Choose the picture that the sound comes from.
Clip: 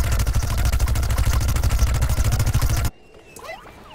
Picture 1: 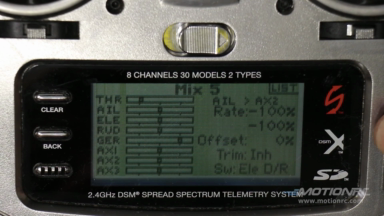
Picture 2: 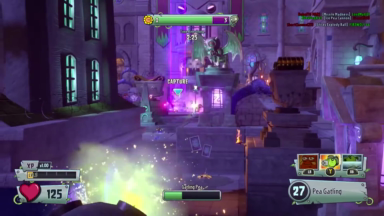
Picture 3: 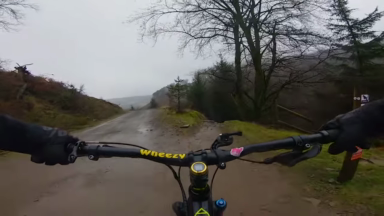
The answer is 2